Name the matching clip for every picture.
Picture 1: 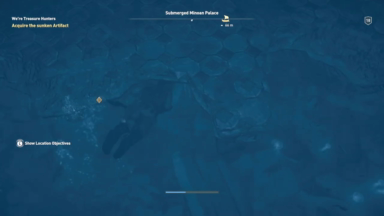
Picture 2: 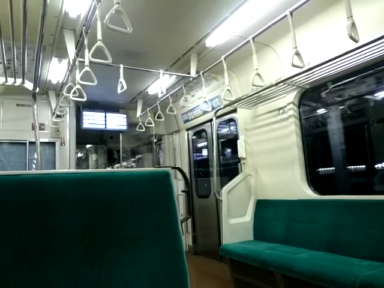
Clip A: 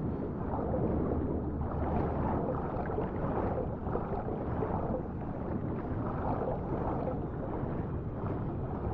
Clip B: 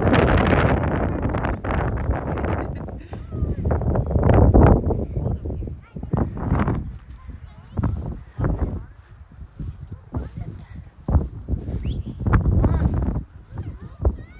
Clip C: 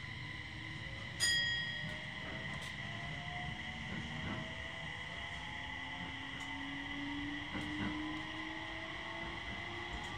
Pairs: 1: A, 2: C